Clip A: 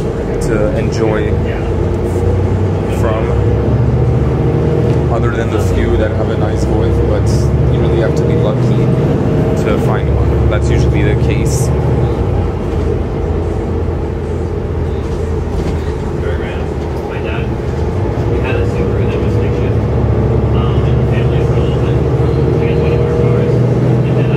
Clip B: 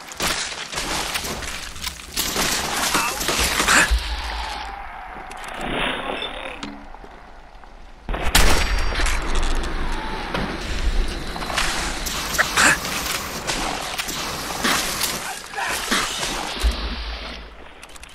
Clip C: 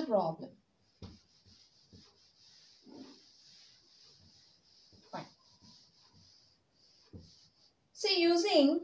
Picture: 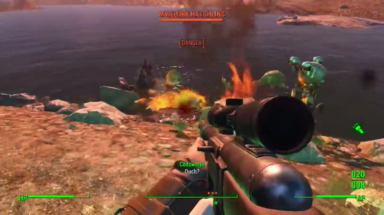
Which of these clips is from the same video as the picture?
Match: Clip B